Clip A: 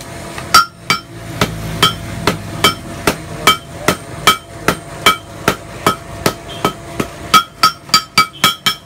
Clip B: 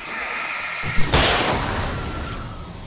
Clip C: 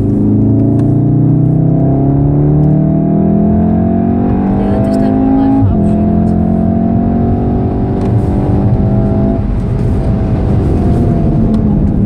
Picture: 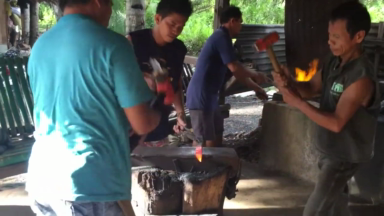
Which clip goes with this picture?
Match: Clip A